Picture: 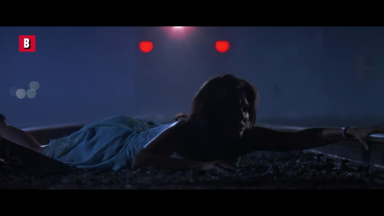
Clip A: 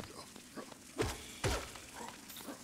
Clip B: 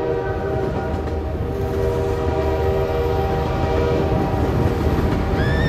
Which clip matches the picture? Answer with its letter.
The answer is B